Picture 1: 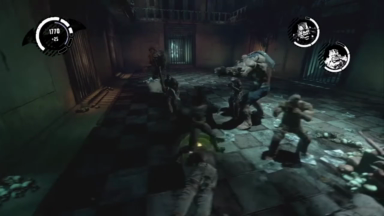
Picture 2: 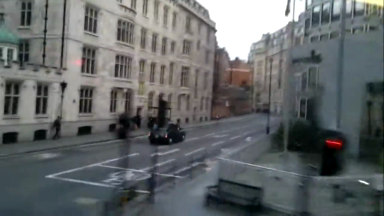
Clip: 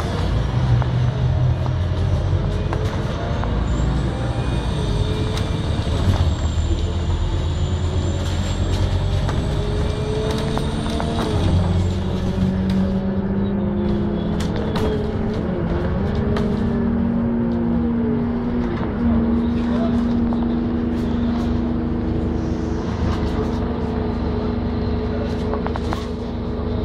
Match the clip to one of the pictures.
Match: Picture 2